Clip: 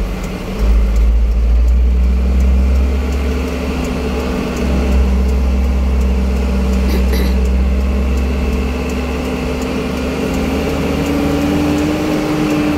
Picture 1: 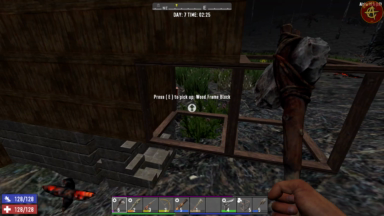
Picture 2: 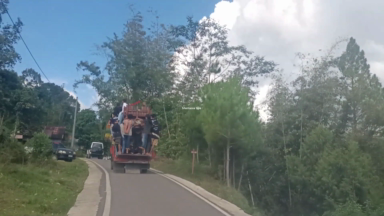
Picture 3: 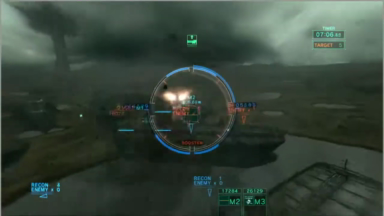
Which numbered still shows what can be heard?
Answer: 2